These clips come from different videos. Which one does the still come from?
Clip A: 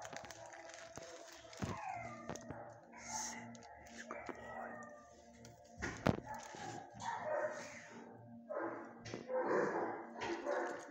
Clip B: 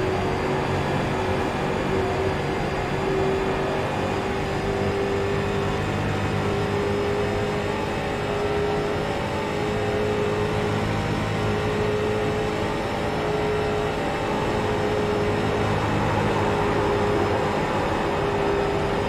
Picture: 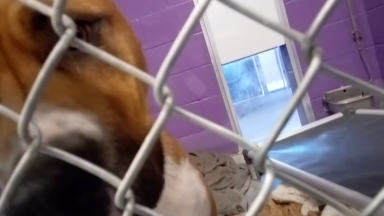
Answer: A